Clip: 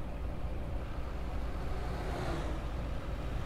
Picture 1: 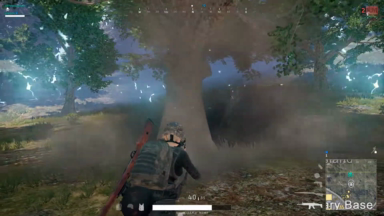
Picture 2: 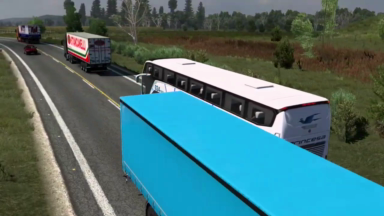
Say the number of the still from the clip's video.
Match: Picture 2